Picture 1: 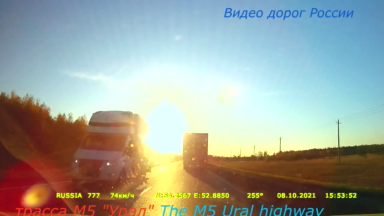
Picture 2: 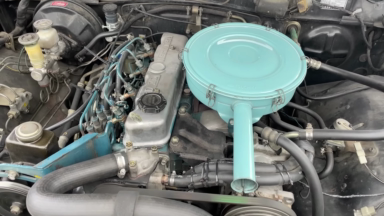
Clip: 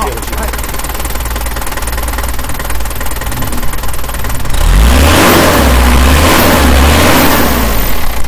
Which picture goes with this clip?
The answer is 2